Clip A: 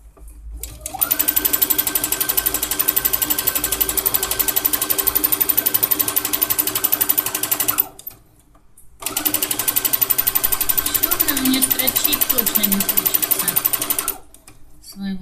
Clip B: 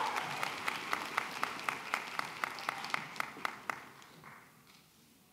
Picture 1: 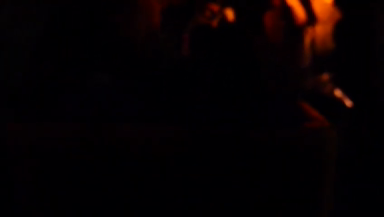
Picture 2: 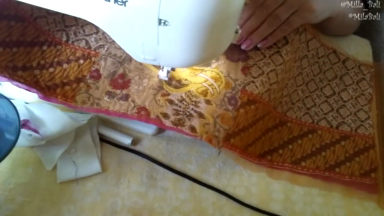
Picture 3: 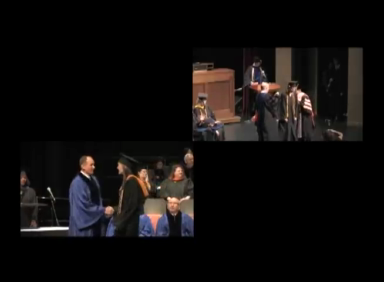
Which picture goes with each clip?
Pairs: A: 2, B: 3